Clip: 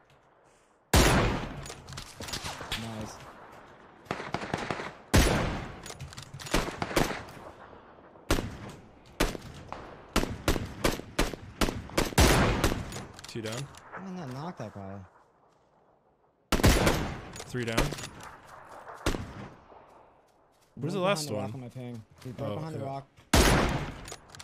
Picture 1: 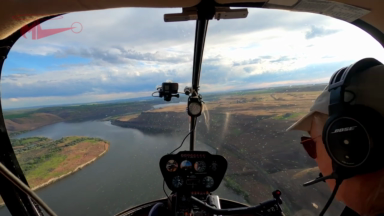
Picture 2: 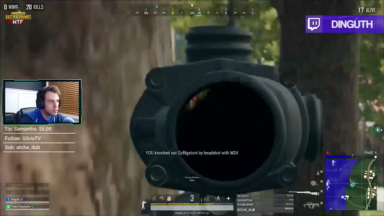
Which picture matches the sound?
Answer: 2